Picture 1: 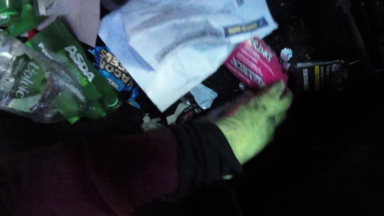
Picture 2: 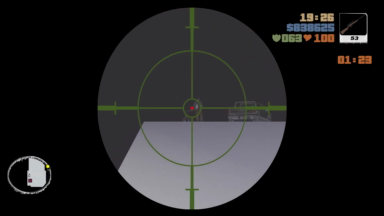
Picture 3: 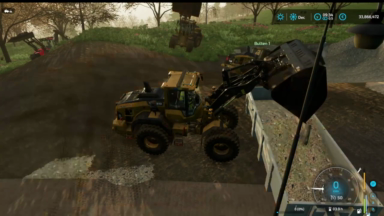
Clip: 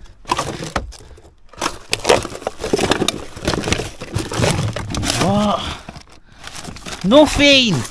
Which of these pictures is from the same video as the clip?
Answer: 1